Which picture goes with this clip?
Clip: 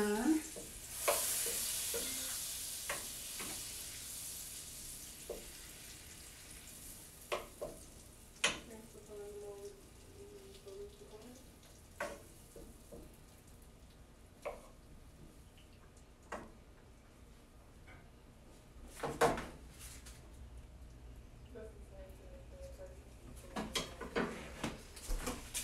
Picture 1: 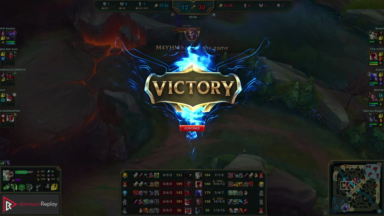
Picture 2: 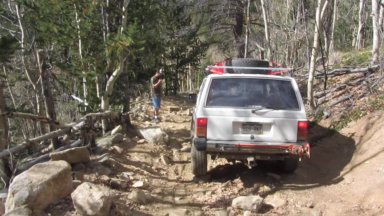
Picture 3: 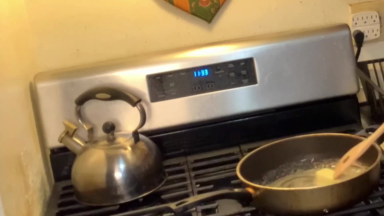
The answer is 3